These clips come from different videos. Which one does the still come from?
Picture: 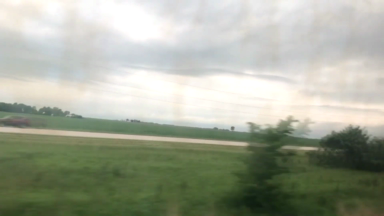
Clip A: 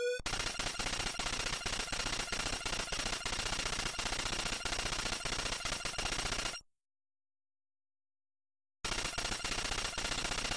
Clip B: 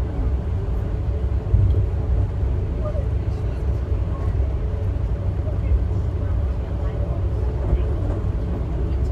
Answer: B